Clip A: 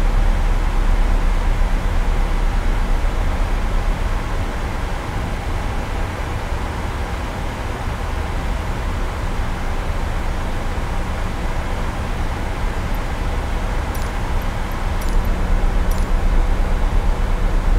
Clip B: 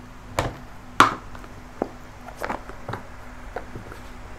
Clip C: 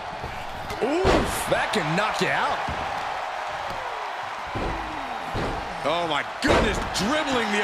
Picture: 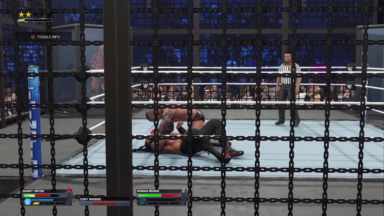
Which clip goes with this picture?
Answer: C